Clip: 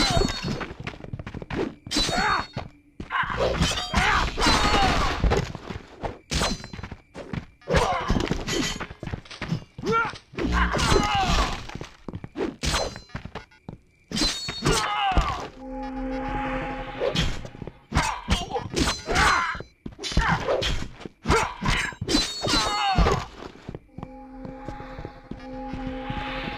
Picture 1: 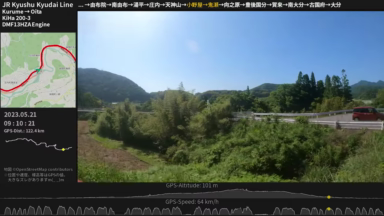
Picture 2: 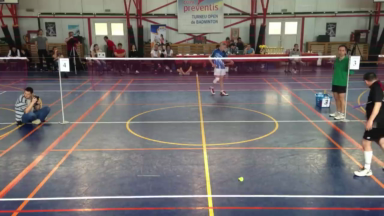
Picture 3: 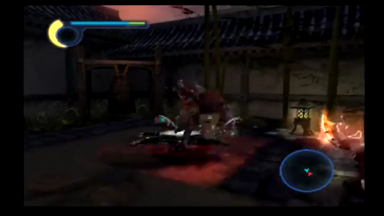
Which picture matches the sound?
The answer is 3